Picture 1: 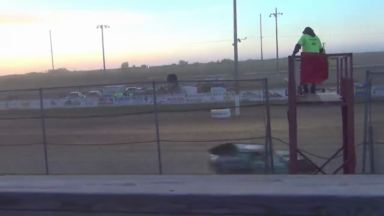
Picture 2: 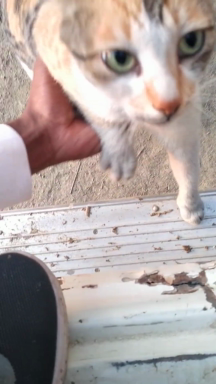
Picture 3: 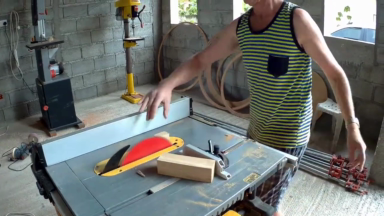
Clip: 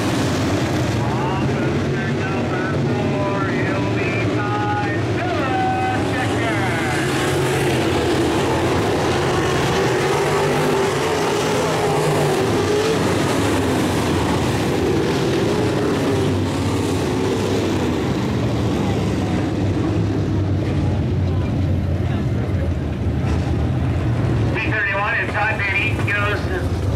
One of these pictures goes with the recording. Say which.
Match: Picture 1